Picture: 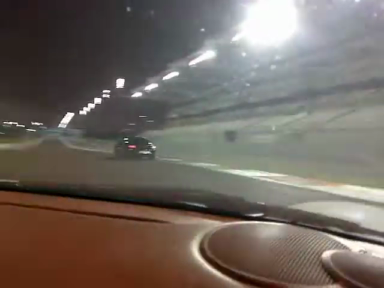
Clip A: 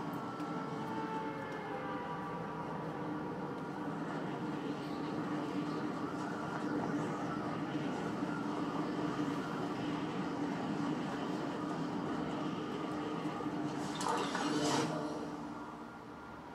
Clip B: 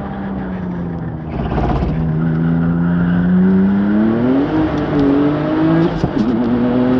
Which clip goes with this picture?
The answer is B